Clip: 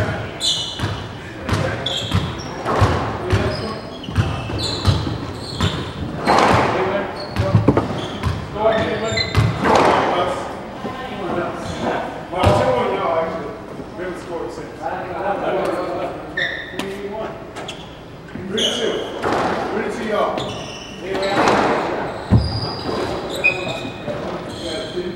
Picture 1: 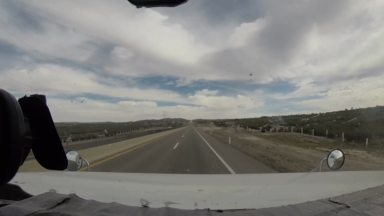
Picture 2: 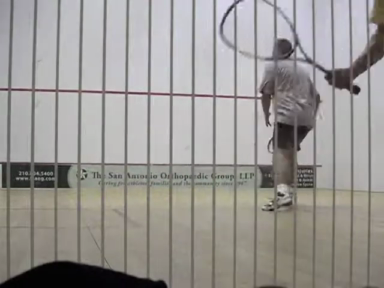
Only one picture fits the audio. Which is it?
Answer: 2